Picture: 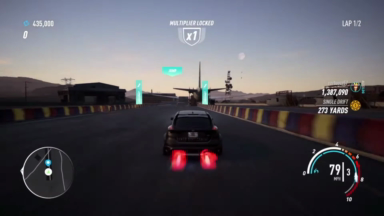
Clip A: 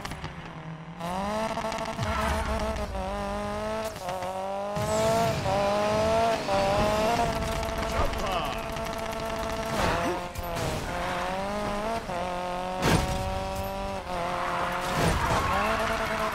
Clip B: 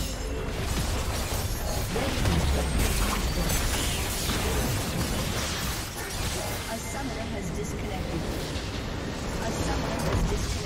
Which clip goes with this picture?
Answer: A